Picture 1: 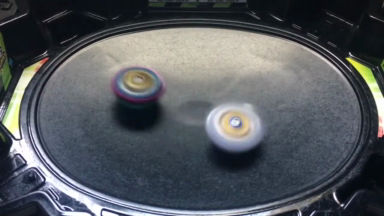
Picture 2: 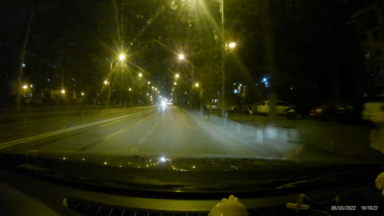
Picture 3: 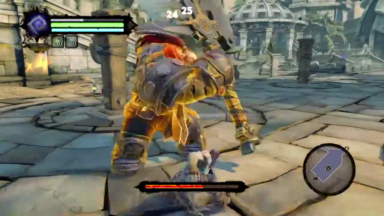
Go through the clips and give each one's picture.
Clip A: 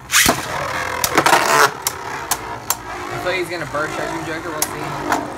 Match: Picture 1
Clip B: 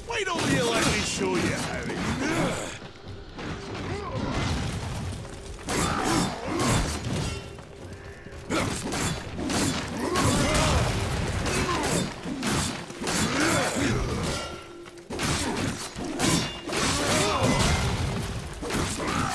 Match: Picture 3